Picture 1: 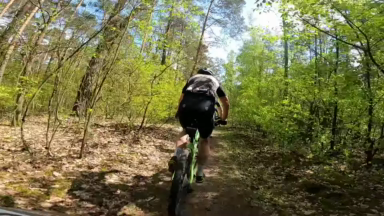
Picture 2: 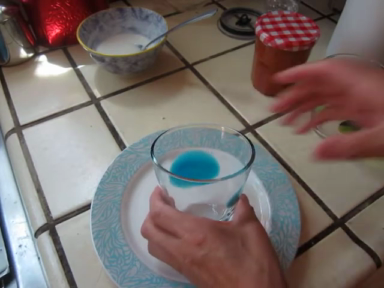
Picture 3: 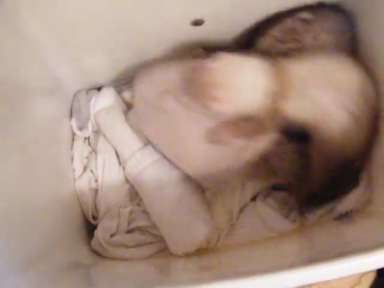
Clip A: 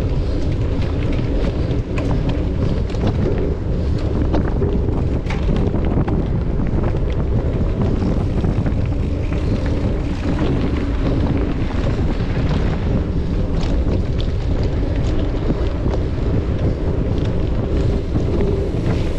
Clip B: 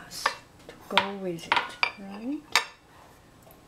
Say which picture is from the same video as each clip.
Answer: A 1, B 2